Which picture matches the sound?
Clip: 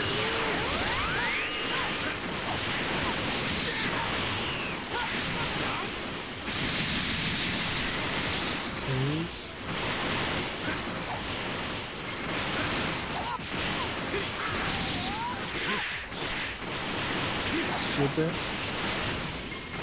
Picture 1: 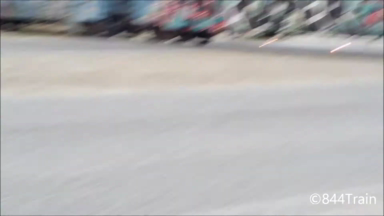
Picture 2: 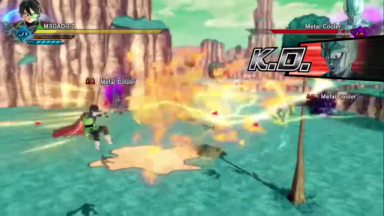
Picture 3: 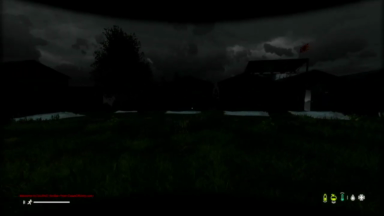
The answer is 2